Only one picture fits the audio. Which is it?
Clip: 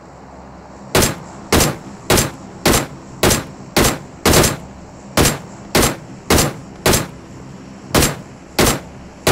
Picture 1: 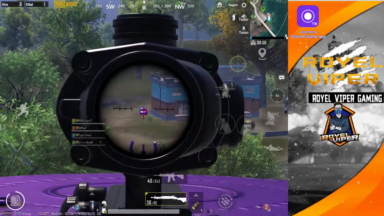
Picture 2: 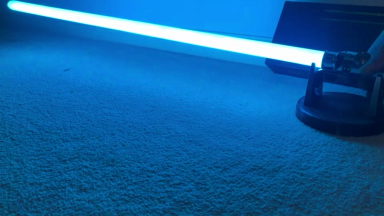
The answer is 1